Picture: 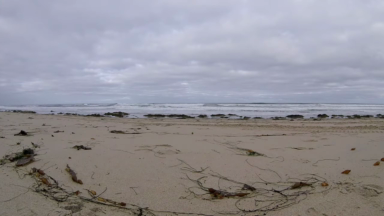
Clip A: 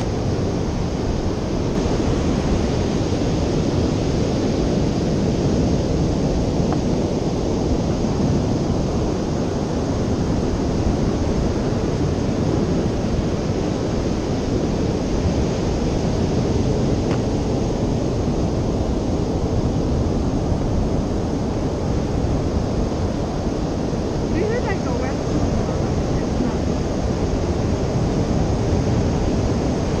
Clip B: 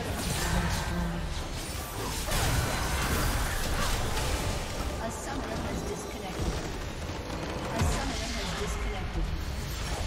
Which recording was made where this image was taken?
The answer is A